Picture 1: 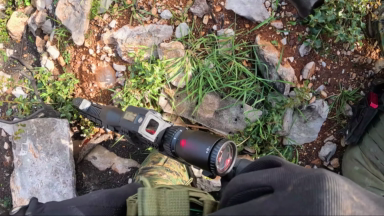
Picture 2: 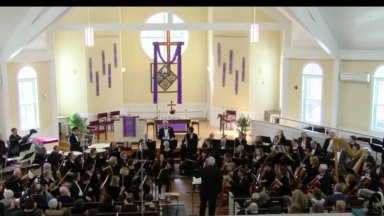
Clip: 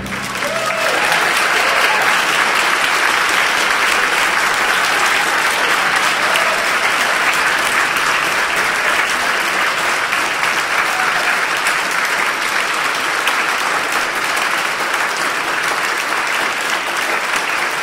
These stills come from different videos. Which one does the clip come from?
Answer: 2